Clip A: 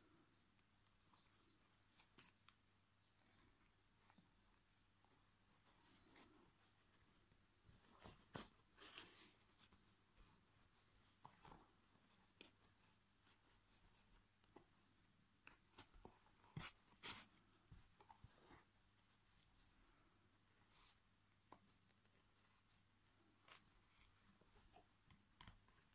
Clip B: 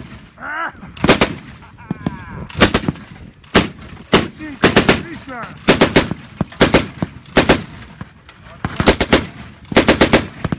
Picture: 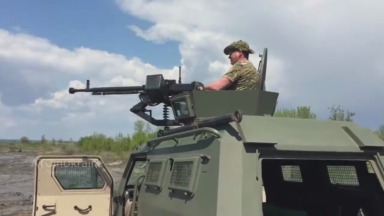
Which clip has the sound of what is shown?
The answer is B